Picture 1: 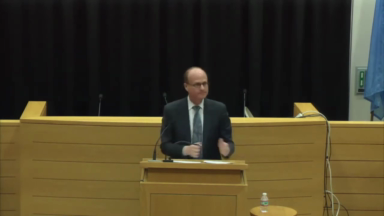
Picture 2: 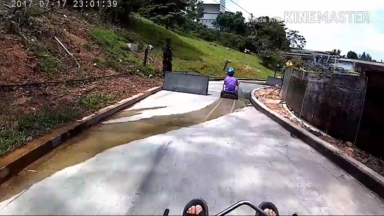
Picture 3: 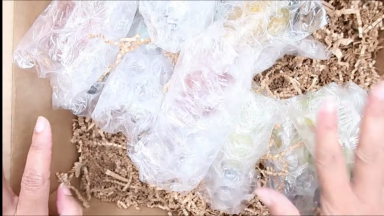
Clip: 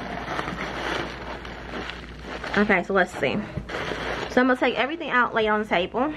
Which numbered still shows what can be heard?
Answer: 3